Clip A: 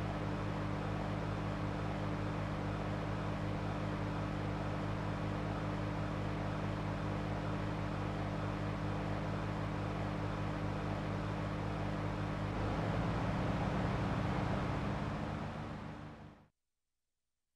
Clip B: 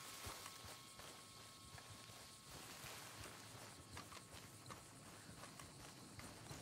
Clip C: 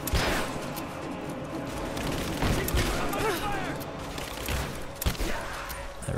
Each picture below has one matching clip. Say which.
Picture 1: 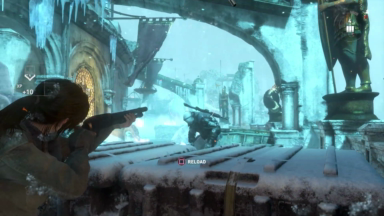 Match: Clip C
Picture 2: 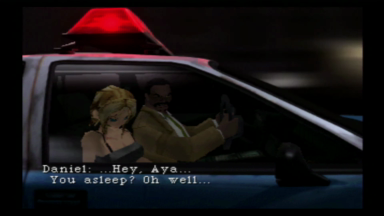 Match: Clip A